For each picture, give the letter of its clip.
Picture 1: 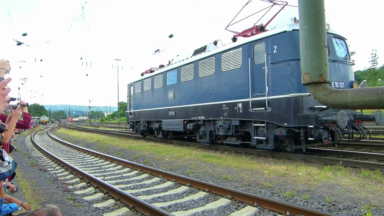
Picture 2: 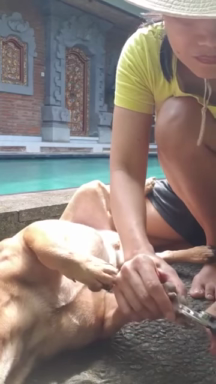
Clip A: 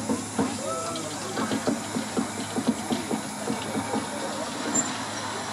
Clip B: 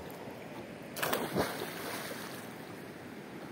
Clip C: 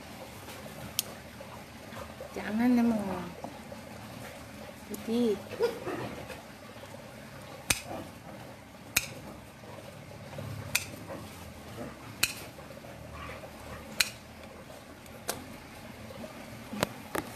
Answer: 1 A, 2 C